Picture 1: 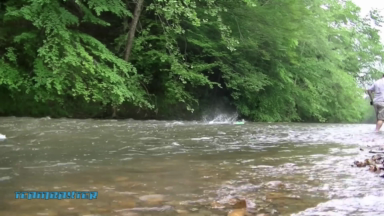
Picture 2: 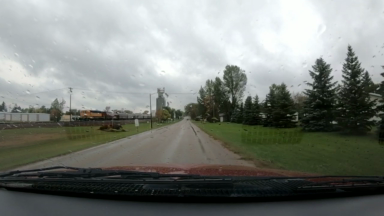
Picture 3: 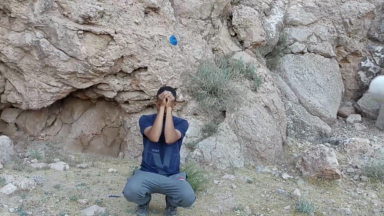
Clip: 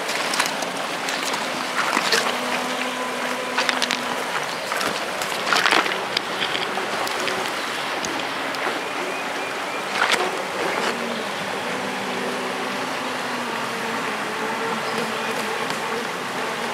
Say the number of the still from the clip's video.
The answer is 1